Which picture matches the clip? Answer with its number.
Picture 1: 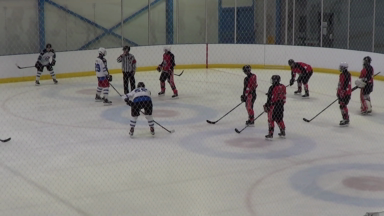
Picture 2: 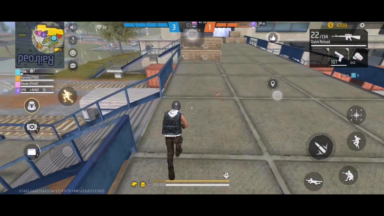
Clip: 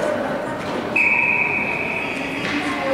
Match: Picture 1